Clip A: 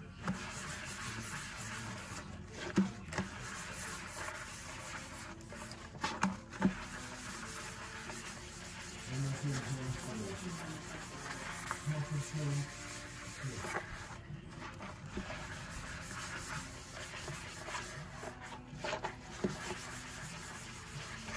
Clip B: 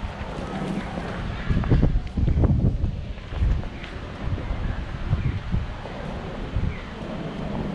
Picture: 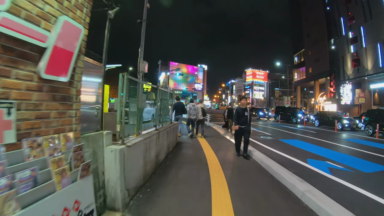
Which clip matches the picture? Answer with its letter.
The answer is B